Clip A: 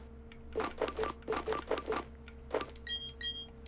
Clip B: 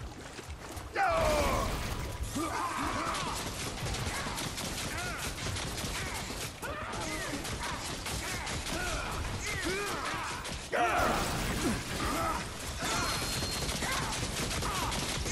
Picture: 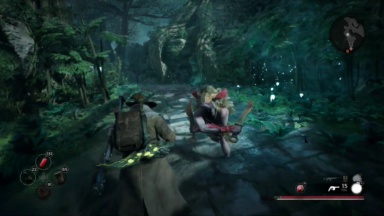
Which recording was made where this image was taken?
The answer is B